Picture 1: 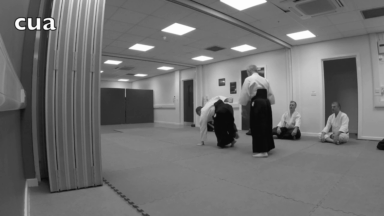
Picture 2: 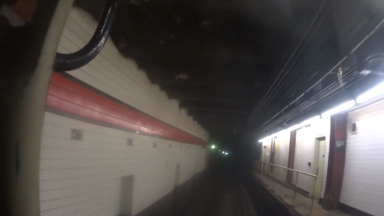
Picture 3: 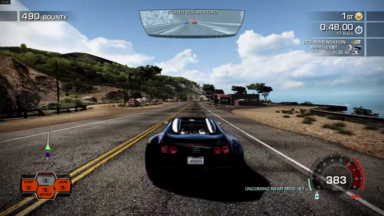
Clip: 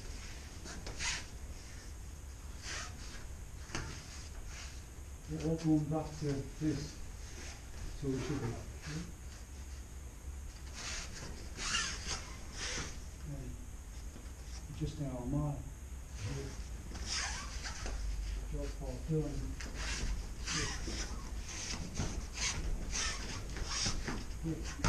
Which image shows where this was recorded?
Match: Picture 1